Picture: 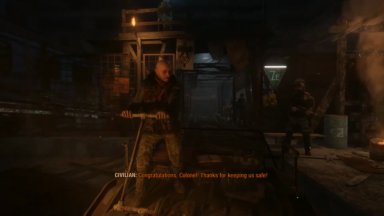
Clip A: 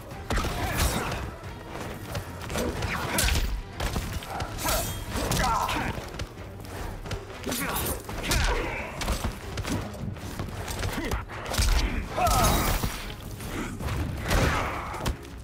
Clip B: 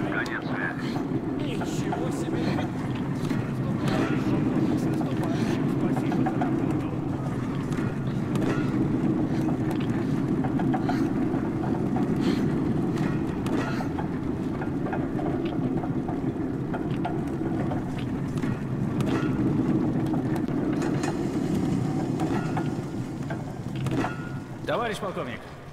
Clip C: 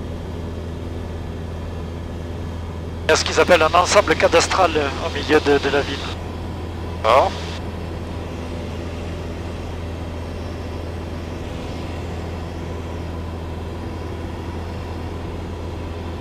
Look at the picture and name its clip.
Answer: B